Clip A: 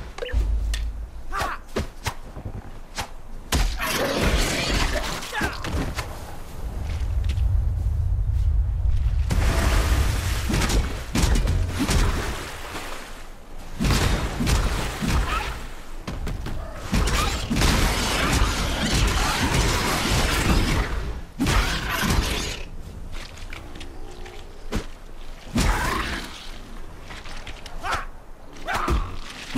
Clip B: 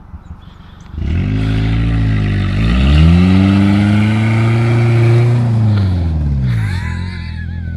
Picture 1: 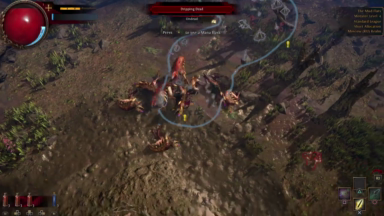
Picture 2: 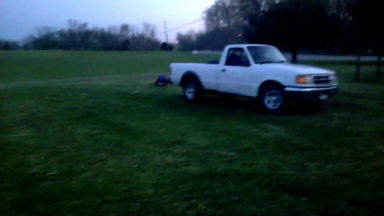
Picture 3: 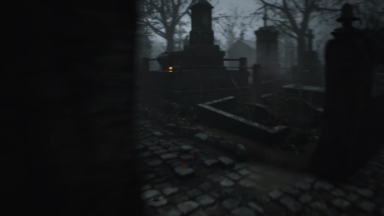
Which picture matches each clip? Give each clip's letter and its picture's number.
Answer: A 1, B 2